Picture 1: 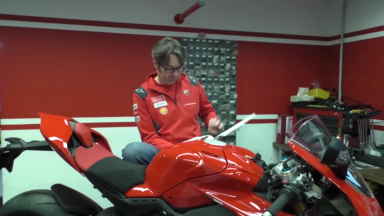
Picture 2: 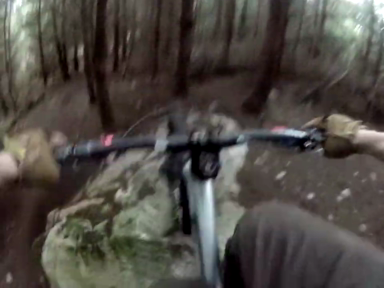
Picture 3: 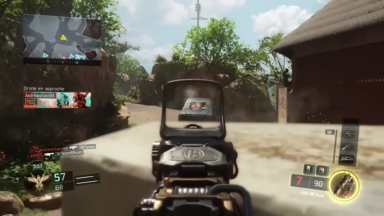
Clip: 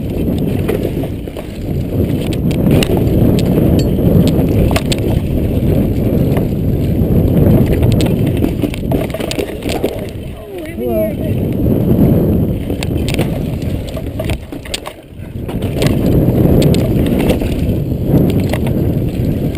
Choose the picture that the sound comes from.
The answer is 2